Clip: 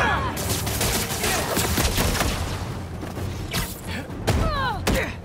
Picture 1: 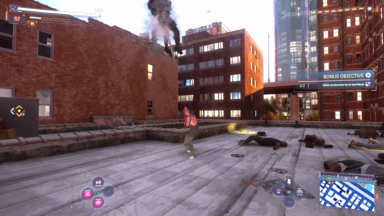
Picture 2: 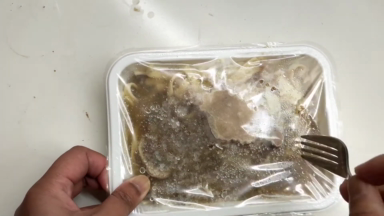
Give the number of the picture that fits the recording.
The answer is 1